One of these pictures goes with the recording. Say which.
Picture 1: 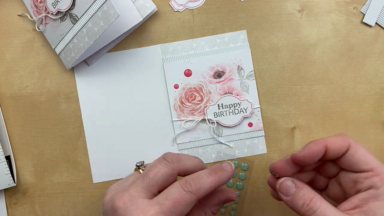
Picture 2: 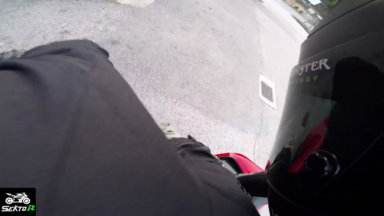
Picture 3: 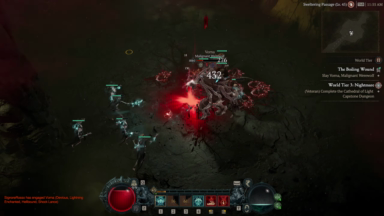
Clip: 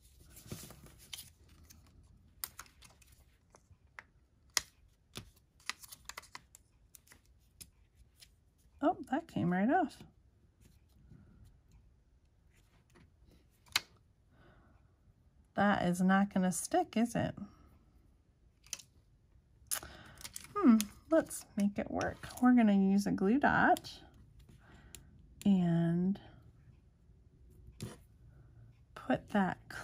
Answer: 1